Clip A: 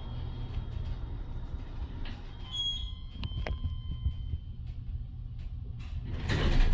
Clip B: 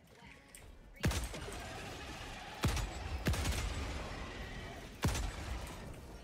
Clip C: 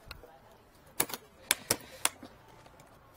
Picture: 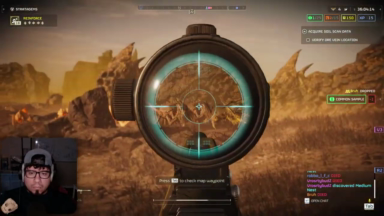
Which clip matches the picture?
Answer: B